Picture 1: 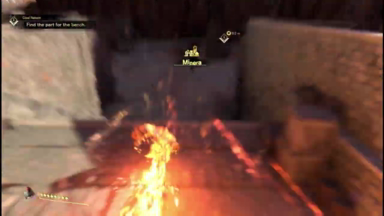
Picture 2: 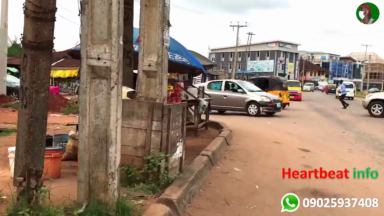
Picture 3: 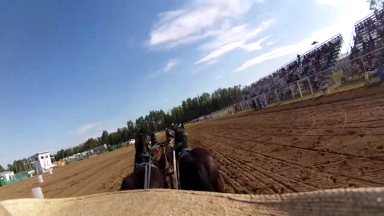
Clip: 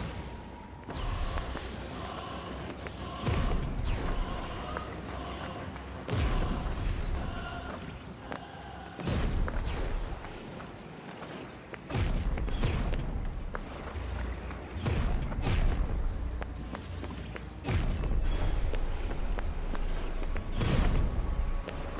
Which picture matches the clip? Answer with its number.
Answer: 1